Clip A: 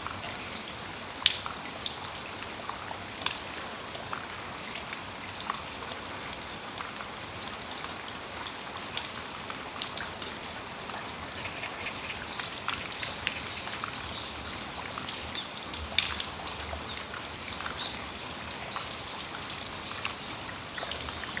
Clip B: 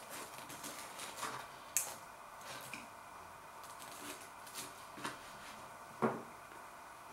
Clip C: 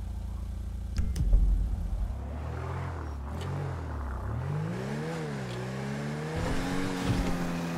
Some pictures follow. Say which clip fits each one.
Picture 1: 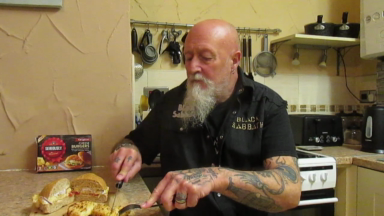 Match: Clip B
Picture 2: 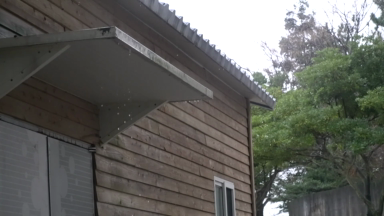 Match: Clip A